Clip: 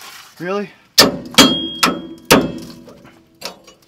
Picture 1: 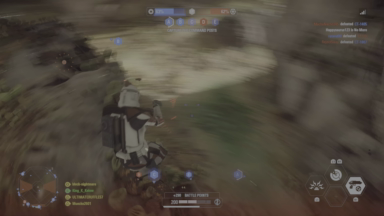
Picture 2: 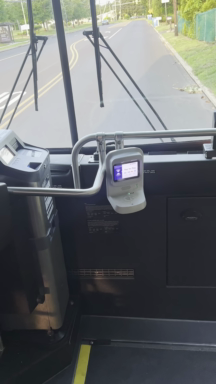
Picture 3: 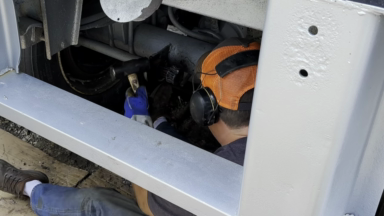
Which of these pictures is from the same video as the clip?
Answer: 3